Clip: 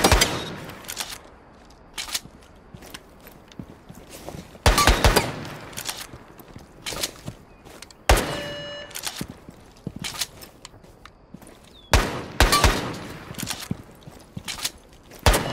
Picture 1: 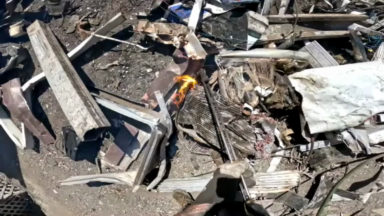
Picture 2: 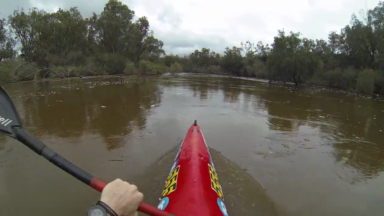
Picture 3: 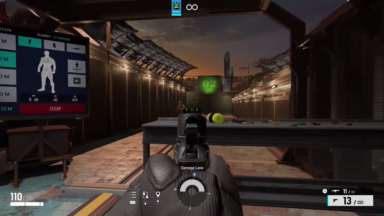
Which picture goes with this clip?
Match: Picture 3